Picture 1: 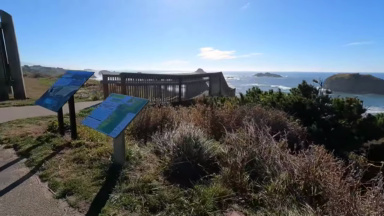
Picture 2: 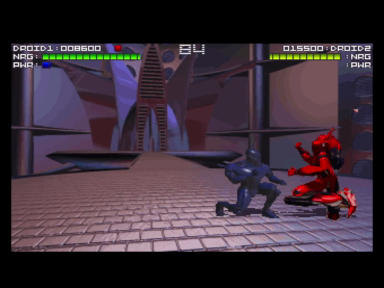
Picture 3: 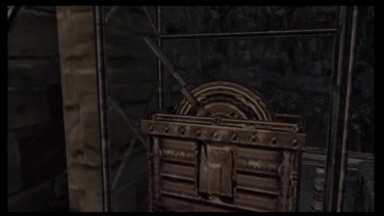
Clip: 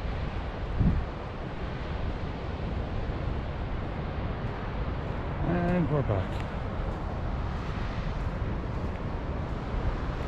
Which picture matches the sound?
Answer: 1